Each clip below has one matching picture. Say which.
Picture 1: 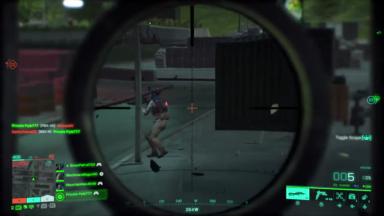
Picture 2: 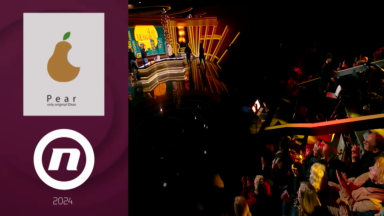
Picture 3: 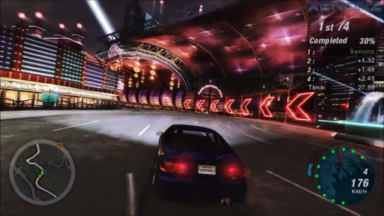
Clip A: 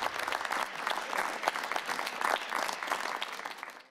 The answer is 2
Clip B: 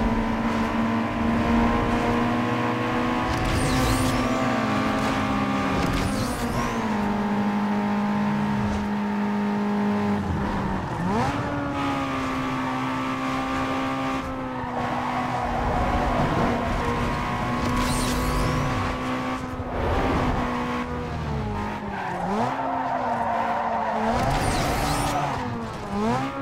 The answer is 3